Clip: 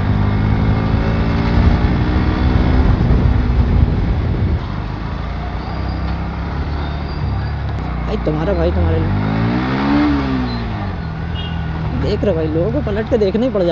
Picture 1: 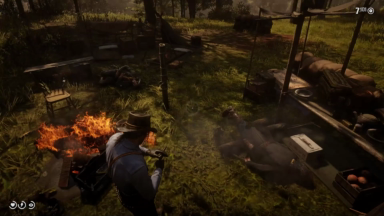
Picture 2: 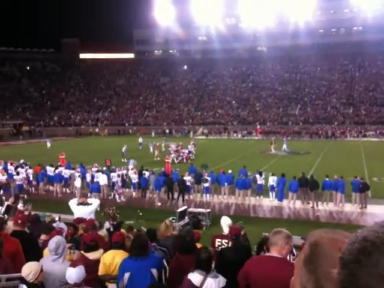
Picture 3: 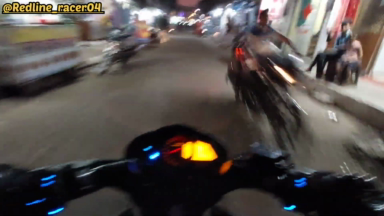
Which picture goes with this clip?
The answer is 3